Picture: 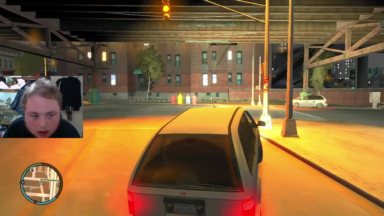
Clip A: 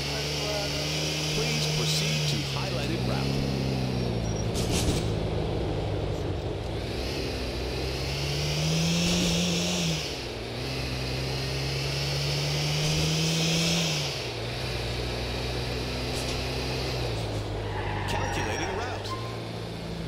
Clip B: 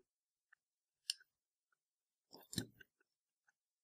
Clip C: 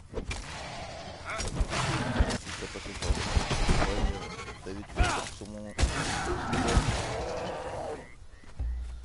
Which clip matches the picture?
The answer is A